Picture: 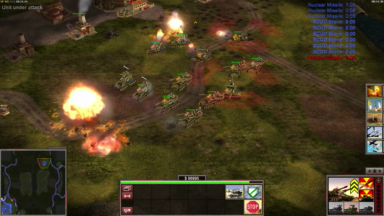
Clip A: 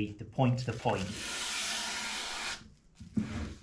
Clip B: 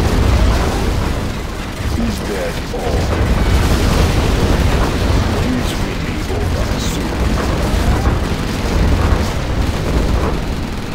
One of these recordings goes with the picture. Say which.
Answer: B